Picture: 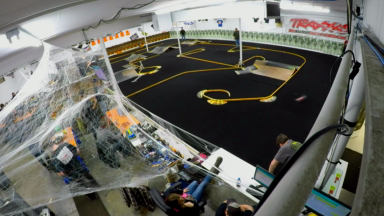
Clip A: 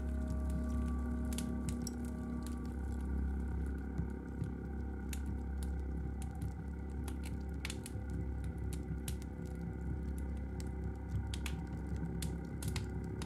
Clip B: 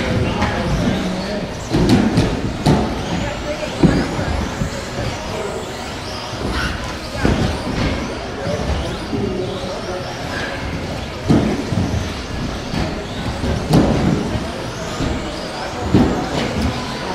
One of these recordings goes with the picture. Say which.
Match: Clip B